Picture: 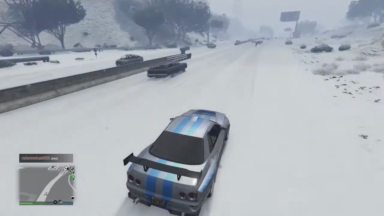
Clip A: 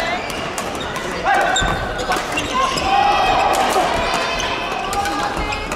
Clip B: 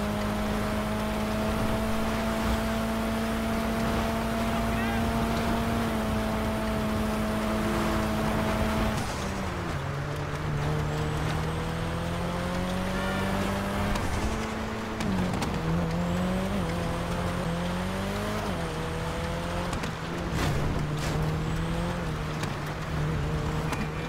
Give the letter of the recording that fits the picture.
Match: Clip B